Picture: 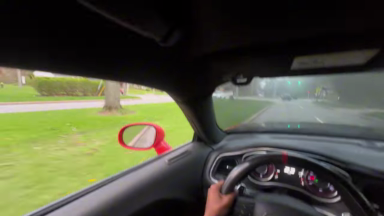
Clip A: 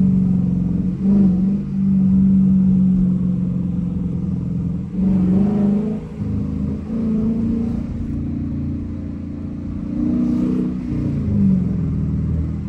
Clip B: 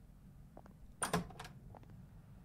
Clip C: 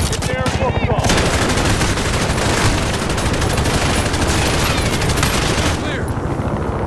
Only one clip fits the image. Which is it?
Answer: A